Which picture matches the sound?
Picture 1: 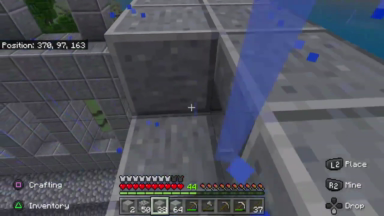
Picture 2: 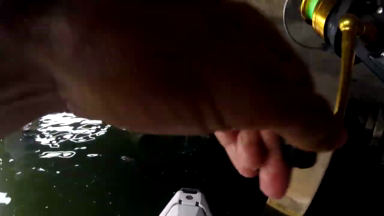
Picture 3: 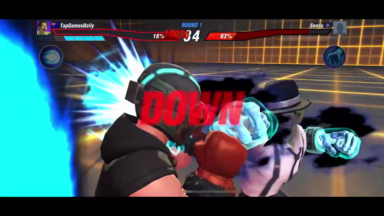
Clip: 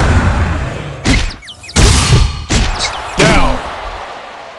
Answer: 3